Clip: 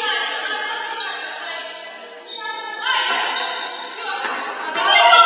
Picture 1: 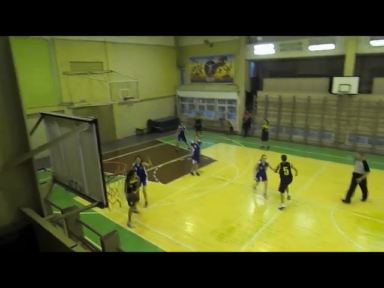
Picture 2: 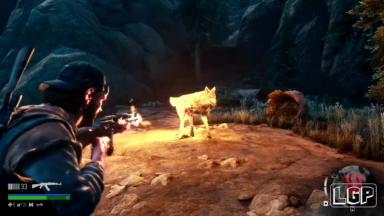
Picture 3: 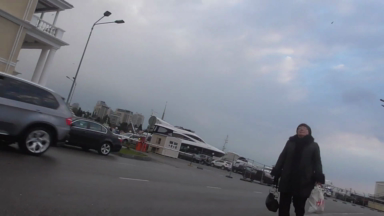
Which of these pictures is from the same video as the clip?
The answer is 1